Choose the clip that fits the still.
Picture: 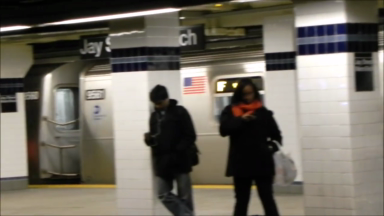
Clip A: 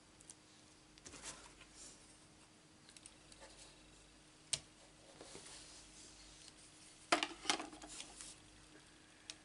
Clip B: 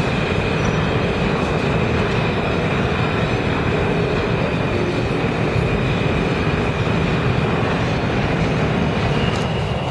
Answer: B